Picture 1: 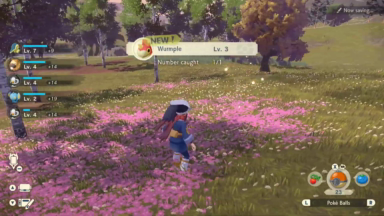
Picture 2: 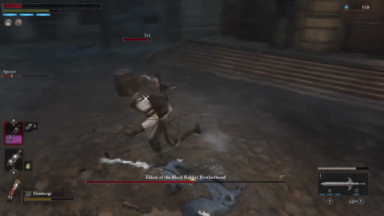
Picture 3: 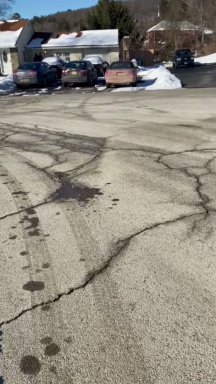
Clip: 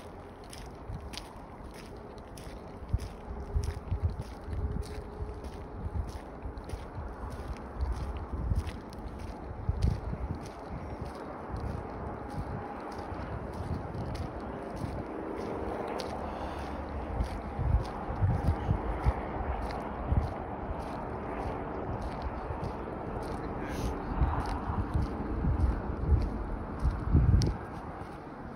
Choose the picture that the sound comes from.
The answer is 3